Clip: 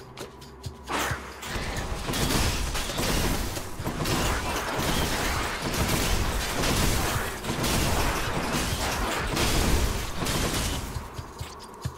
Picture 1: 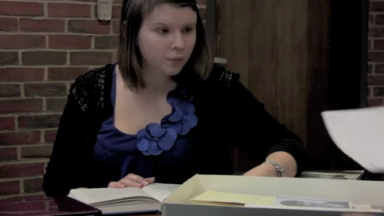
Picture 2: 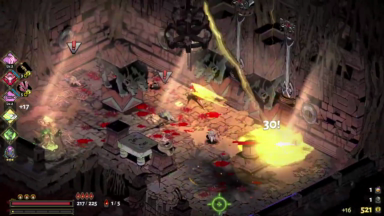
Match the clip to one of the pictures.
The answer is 2